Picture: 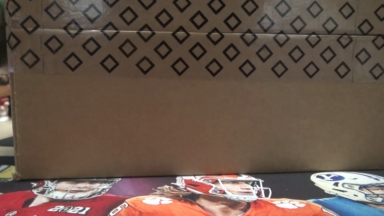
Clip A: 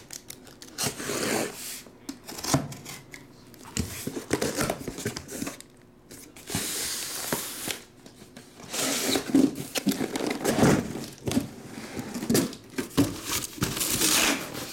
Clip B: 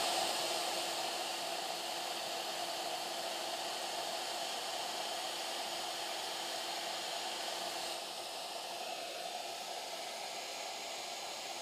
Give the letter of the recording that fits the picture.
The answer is A